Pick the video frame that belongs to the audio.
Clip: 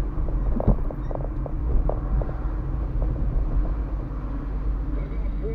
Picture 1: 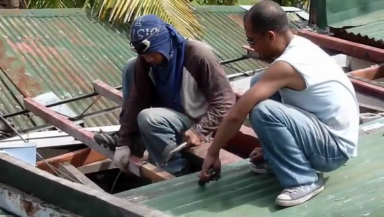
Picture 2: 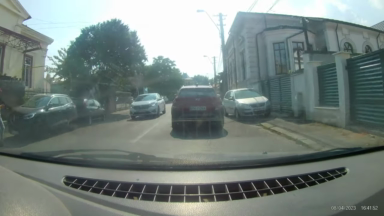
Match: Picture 2